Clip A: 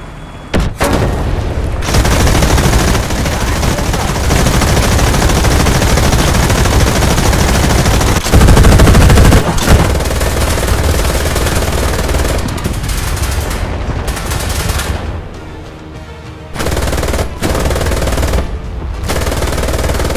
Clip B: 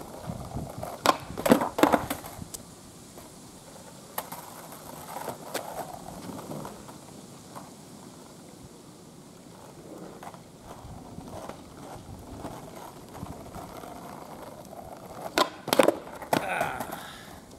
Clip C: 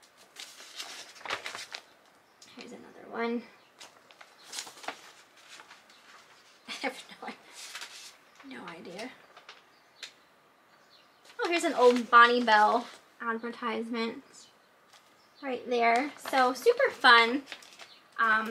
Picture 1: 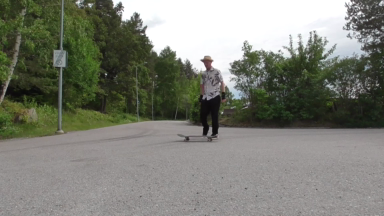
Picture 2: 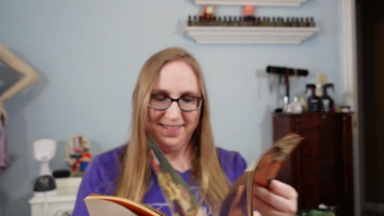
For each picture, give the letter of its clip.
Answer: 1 B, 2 C